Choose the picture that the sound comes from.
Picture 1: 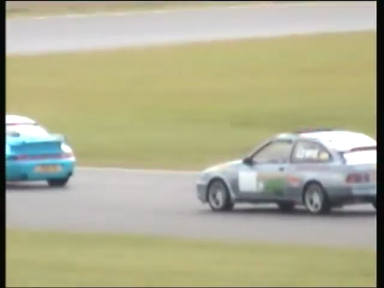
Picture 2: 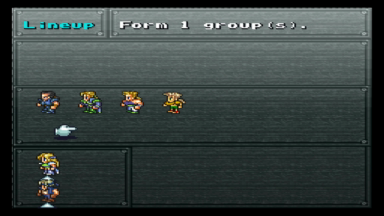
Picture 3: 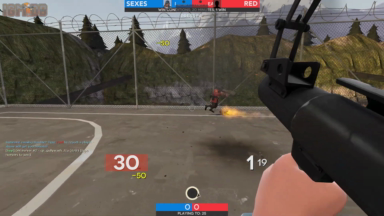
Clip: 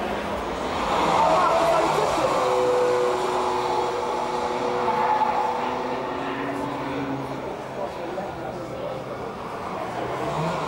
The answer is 1